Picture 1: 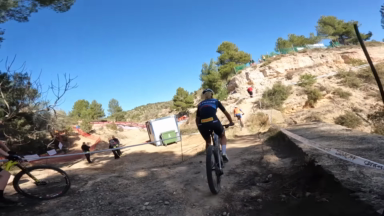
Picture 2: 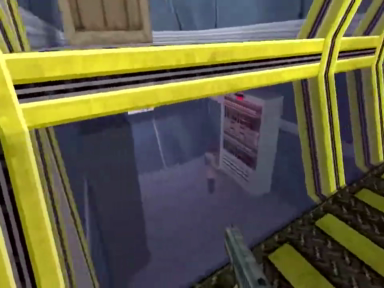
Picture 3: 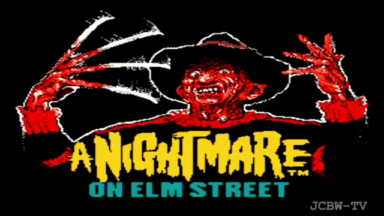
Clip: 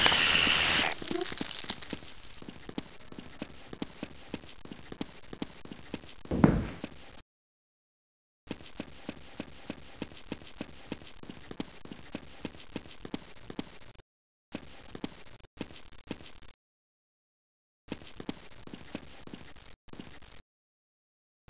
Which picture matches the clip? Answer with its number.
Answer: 2